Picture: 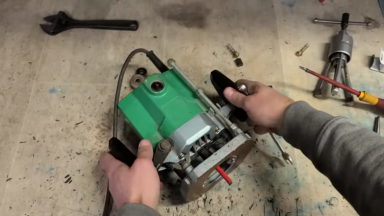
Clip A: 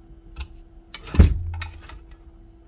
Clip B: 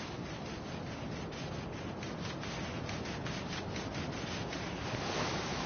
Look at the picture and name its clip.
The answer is A